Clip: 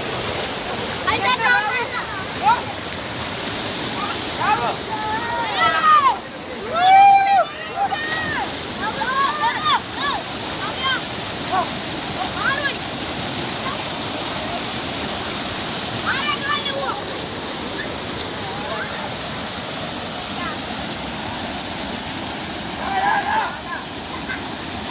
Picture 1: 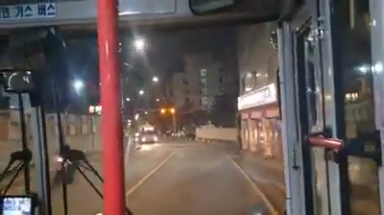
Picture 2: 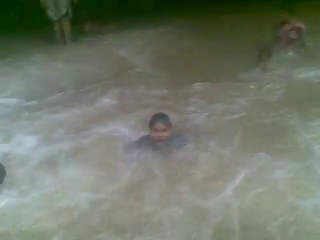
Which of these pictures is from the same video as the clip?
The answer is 2